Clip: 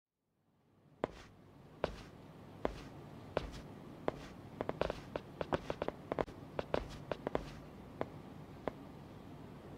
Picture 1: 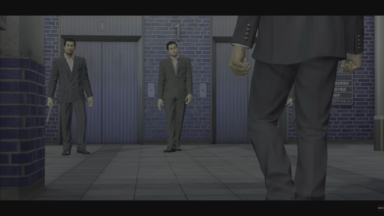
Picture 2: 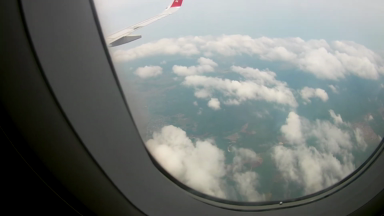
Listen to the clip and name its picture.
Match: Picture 1